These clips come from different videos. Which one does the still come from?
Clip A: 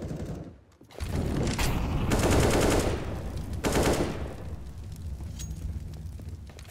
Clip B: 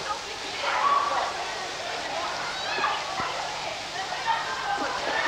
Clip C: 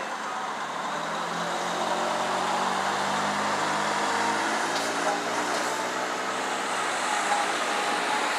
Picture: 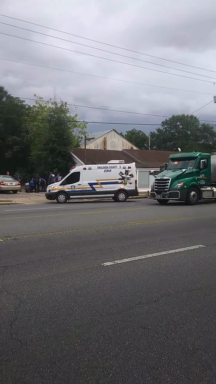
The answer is C